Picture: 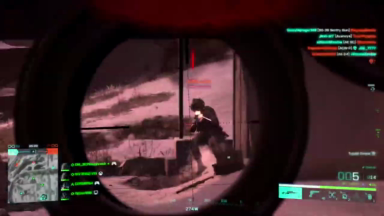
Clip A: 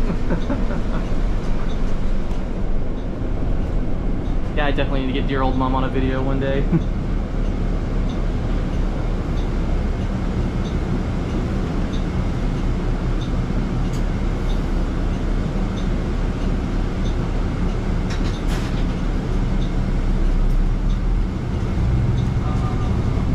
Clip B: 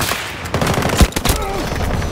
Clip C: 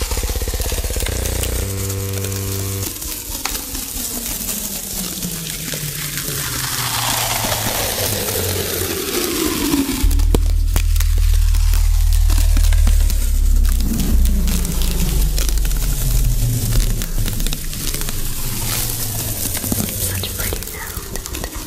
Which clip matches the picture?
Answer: B